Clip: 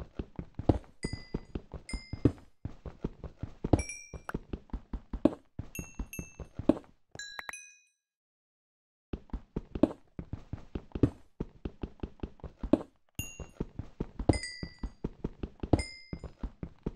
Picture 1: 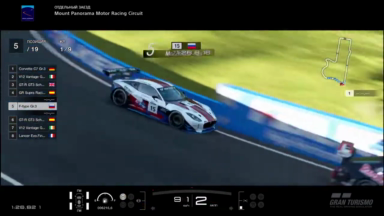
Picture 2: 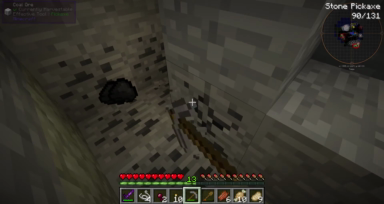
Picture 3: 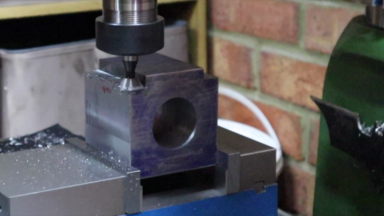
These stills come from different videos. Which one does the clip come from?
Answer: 2